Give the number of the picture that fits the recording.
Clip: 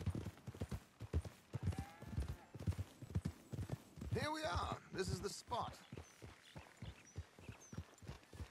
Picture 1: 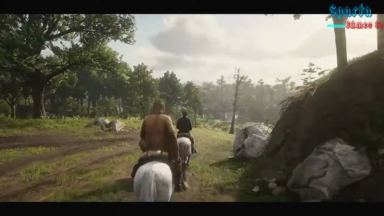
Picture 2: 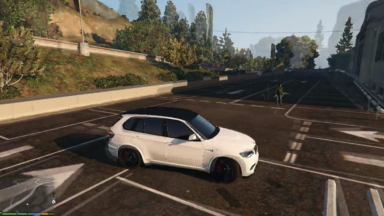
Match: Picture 1